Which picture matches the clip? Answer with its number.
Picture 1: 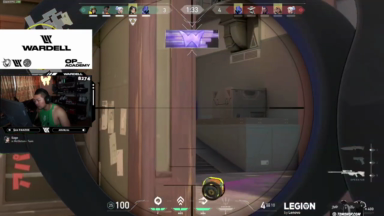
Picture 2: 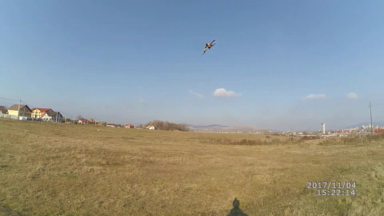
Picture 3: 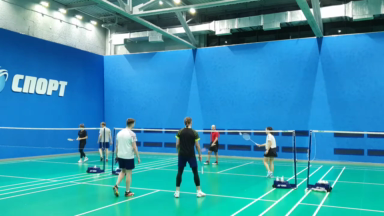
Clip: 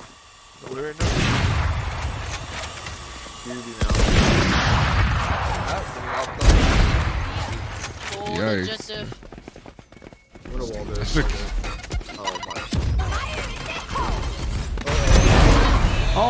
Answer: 1